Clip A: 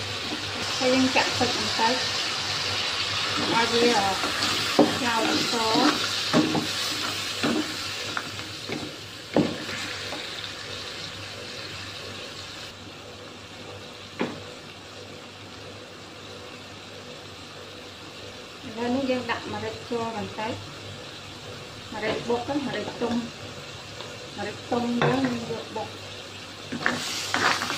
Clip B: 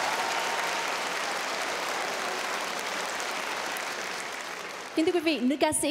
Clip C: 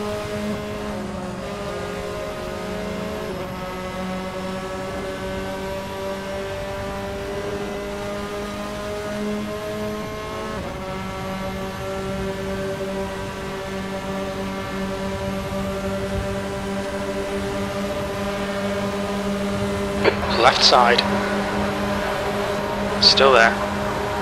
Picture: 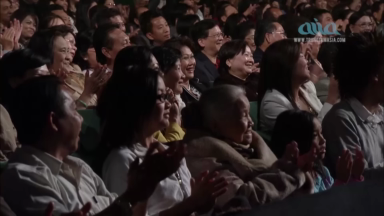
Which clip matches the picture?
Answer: B